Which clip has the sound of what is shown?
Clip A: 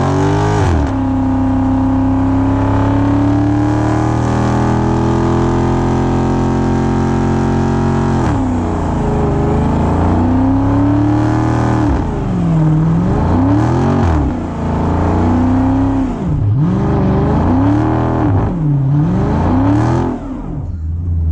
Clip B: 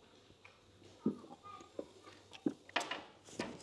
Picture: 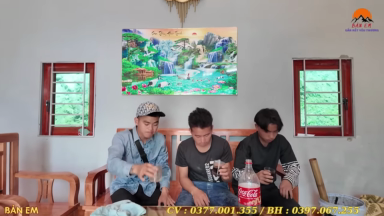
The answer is B